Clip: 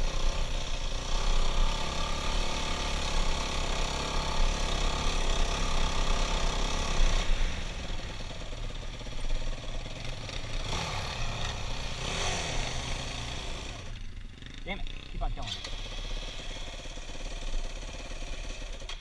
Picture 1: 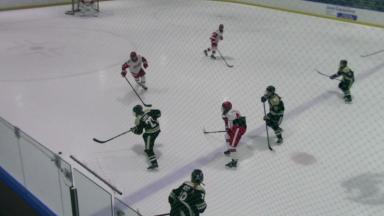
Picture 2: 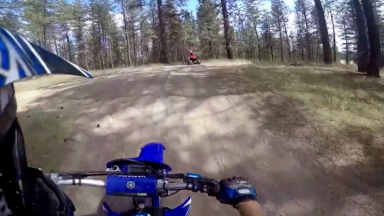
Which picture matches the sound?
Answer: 2